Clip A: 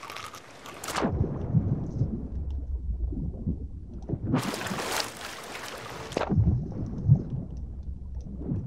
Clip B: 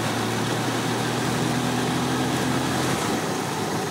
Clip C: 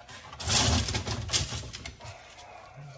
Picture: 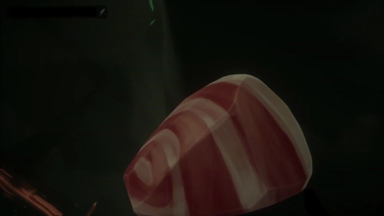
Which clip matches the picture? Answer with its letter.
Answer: A